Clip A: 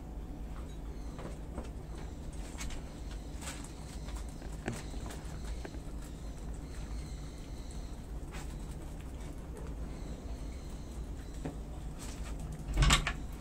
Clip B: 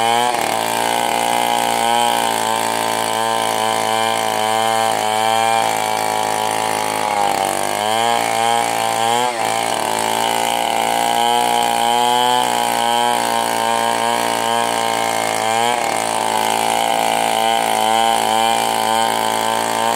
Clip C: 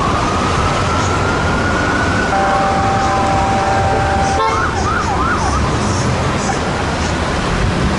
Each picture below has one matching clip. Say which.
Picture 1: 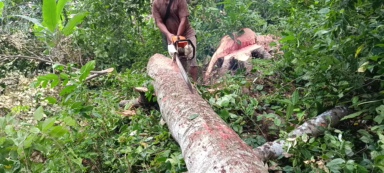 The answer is B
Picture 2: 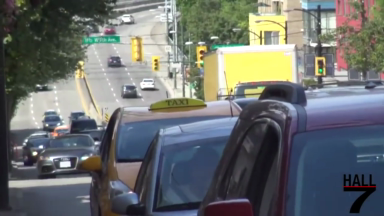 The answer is C